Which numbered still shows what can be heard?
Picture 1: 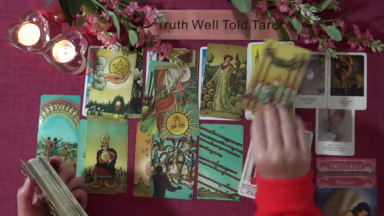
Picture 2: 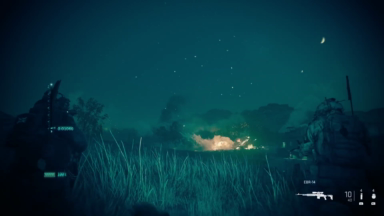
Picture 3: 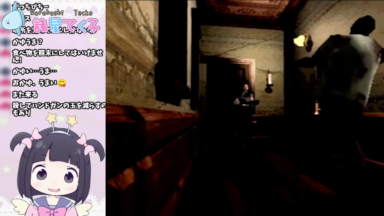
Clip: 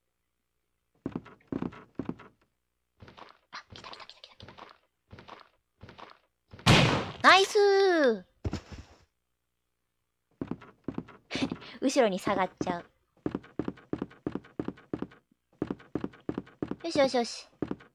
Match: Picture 3